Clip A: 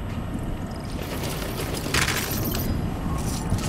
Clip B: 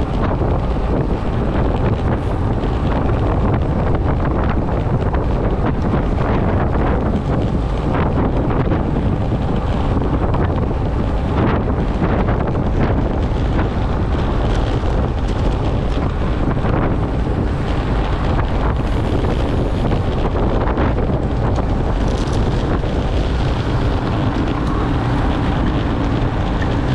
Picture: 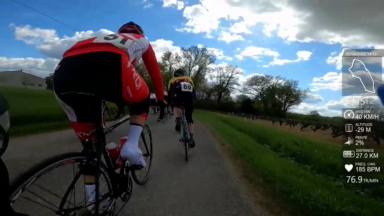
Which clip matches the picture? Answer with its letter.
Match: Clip B